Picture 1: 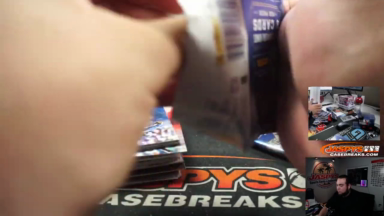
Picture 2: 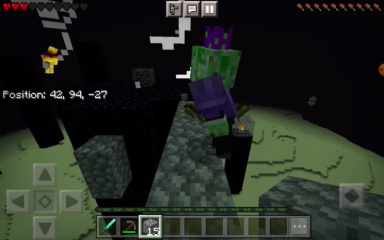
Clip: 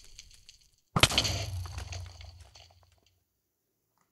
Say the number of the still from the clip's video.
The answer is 2